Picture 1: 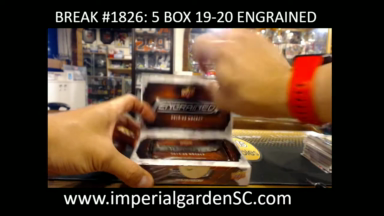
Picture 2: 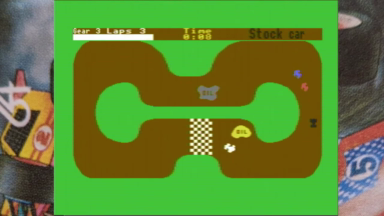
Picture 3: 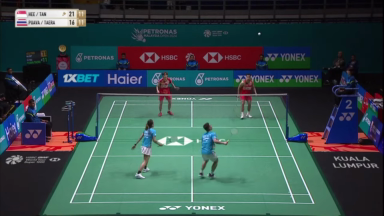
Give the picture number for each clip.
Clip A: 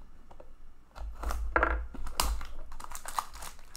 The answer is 1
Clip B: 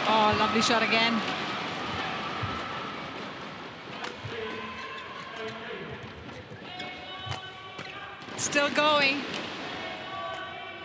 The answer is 3